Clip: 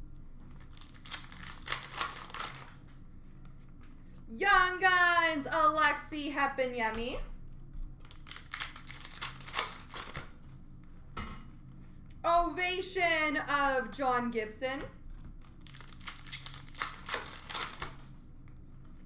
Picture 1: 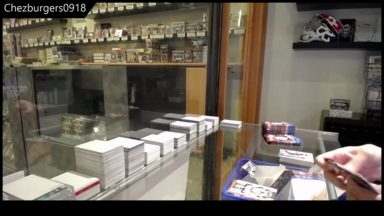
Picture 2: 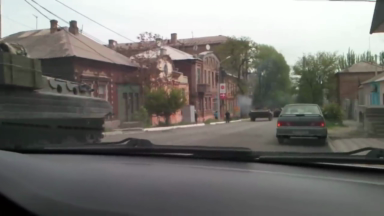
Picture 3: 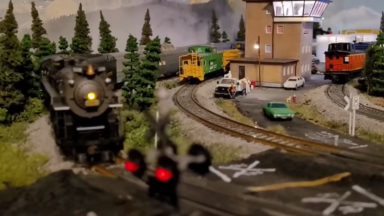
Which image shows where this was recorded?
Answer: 1